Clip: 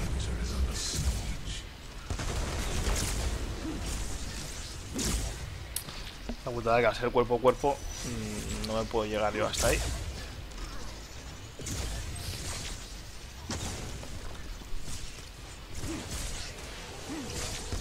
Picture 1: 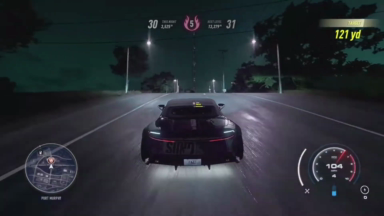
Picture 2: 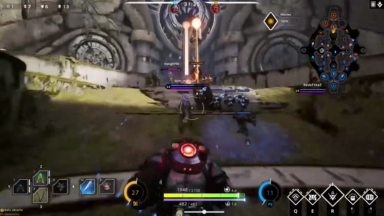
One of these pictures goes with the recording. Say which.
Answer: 2